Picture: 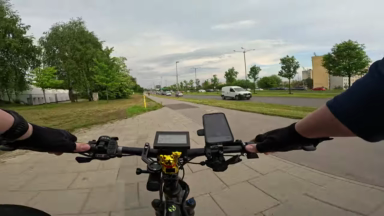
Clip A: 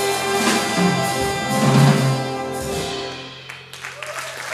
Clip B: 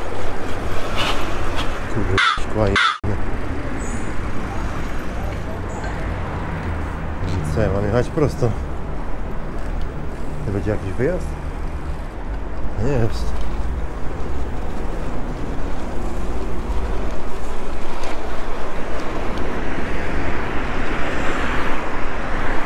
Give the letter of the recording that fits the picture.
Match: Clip B